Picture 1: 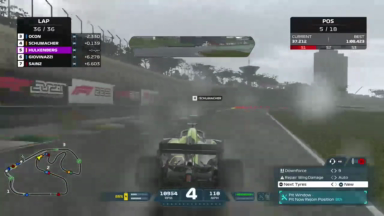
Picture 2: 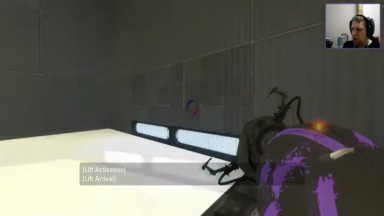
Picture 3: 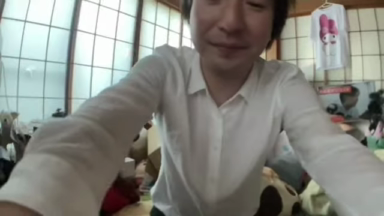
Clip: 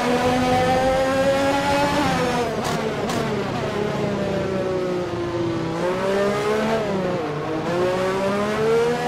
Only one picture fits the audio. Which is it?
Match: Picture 1